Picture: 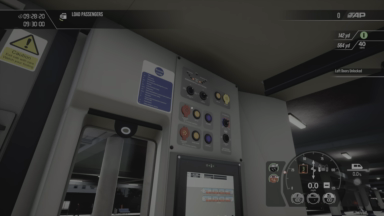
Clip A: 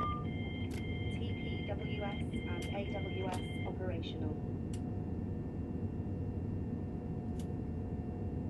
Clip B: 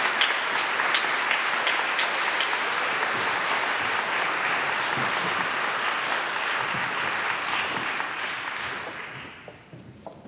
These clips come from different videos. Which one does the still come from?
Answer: A